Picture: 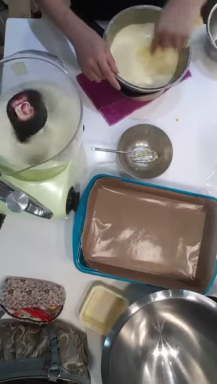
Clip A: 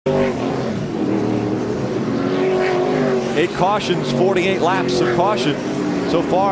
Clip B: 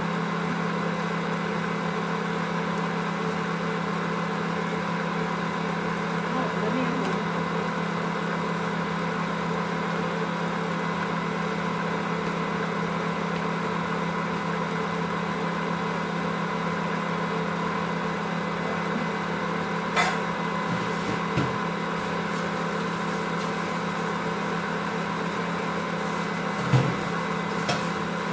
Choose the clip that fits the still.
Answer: B